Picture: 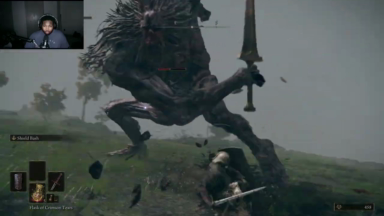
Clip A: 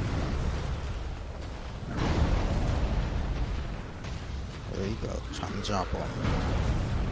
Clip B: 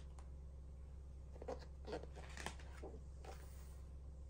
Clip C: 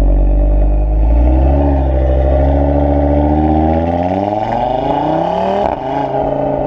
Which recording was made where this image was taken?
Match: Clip A